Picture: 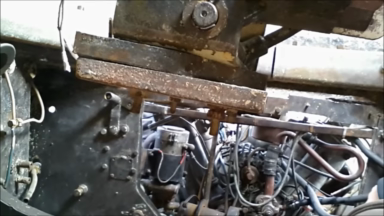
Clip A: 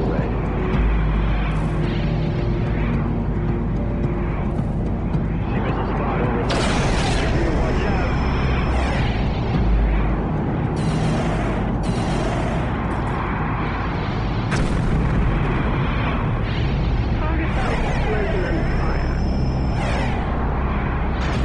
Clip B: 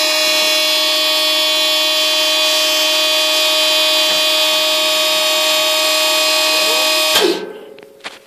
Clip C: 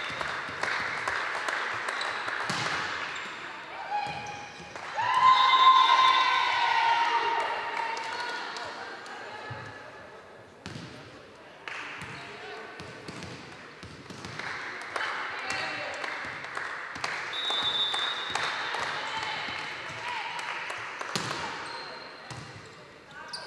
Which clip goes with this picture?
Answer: B